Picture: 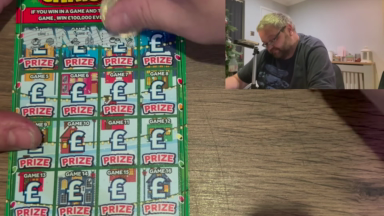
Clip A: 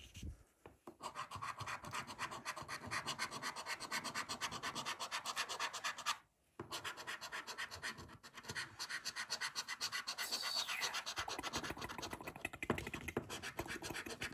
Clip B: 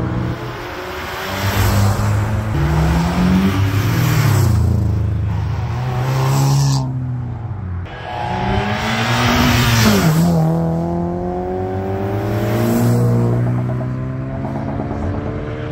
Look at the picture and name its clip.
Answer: A